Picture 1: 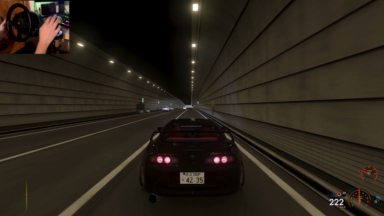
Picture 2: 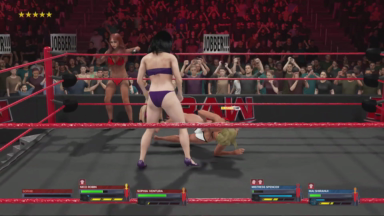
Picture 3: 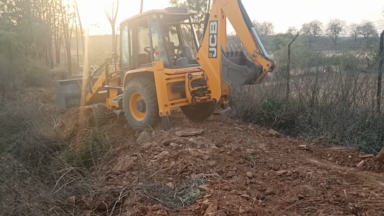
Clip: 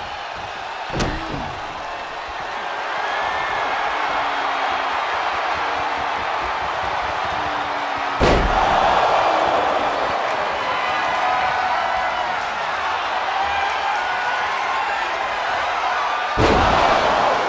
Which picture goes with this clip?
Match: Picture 2